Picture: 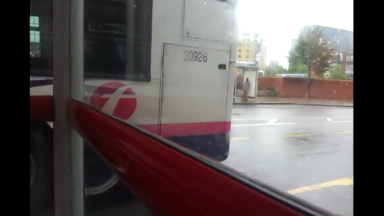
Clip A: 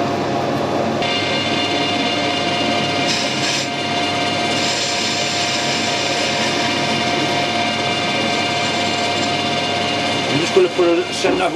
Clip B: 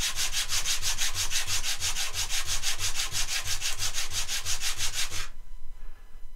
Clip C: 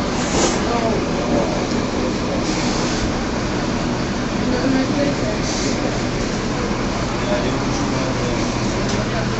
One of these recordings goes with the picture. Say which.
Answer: C